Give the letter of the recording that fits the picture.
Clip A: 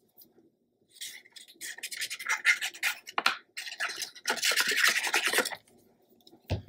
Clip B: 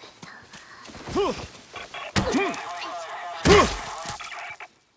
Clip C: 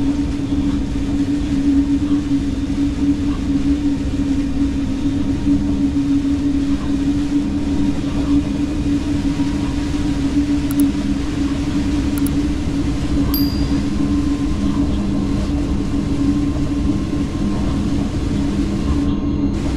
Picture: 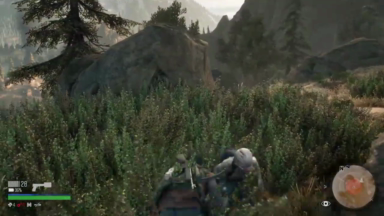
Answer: B